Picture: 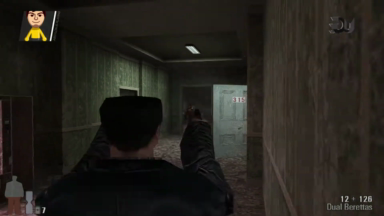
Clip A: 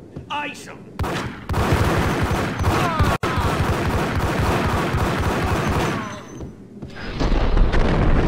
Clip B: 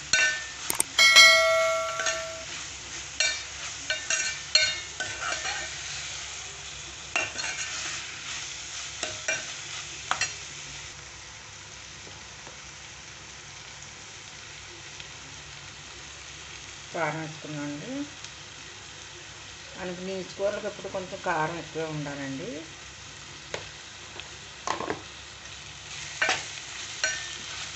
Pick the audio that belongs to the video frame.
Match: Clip A